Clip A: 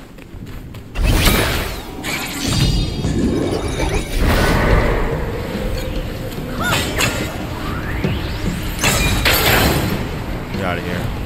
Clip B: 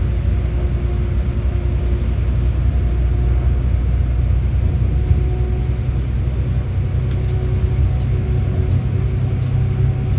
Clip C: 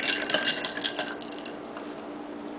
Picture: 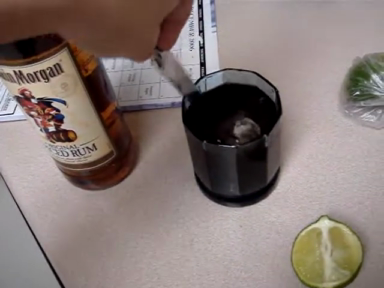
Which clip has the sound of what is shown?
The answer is C